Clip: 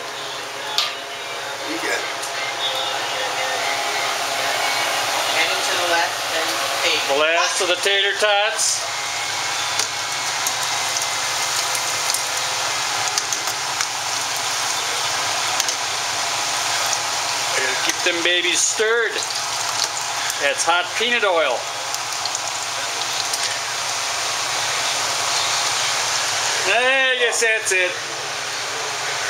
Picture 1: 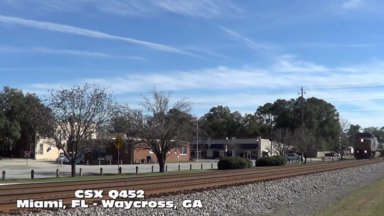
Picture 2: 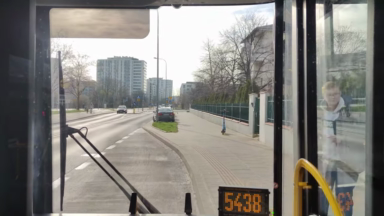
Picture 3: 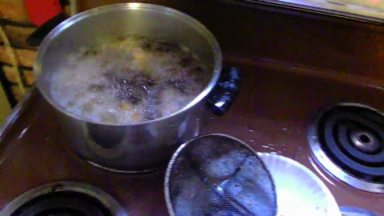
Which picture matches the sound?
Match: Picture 3